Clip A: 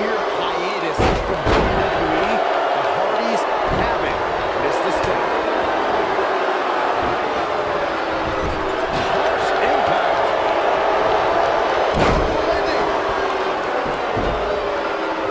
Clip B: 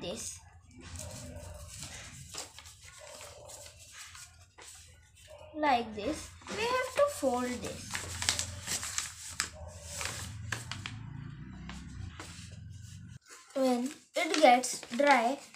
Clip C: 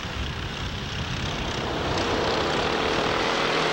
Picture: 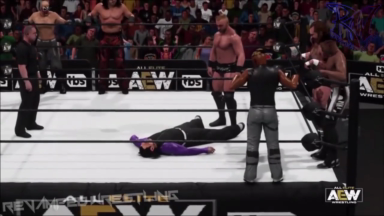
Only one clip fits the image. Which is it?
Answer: A